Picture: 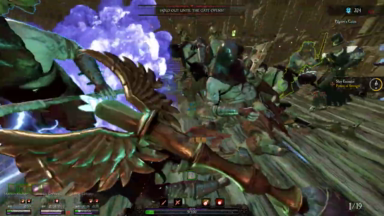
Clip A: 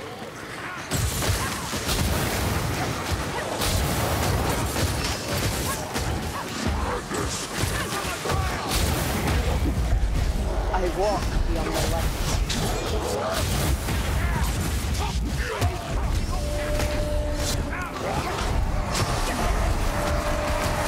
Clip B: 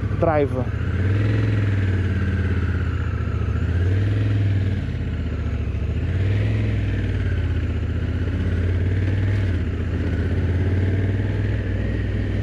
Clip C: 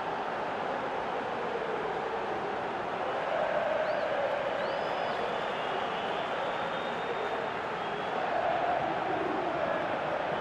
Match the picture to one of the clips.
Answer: A